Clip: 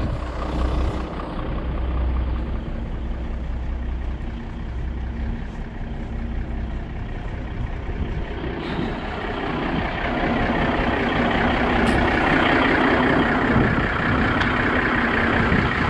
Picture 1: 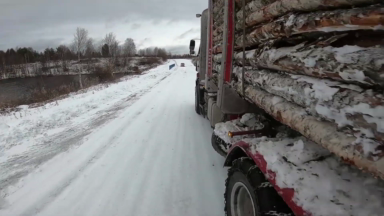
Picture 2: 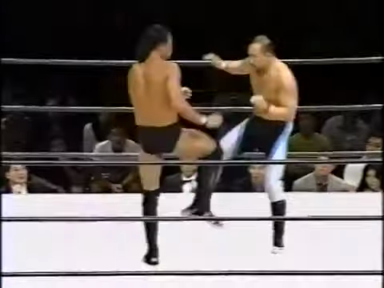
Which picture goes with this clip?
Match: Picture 1